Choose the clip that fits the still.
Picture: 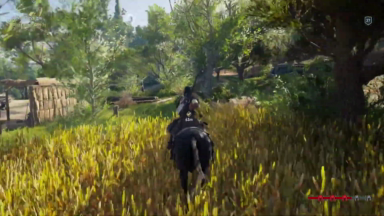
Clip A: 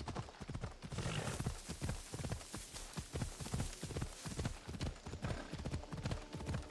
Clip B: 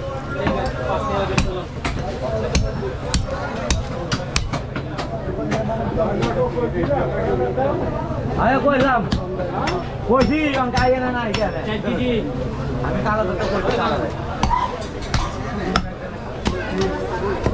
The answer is A